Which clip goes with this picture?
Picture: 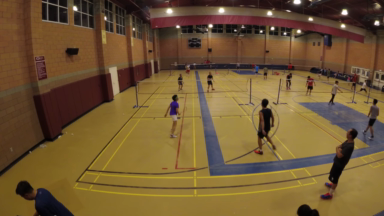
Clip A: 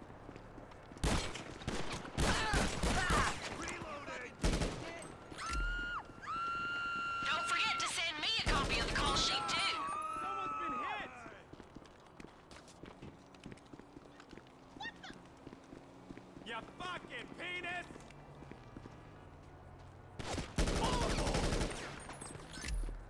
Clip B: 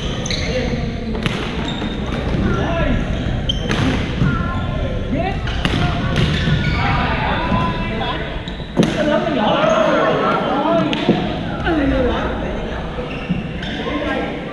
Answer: B